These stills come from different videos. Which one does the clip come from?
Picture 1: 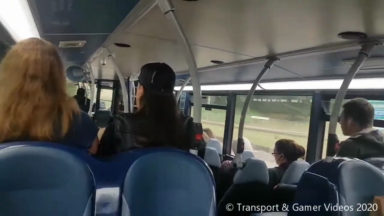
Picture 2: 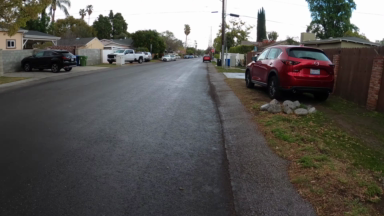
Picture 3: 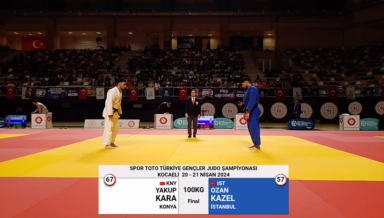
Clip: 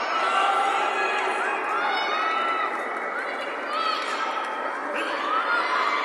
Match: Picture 3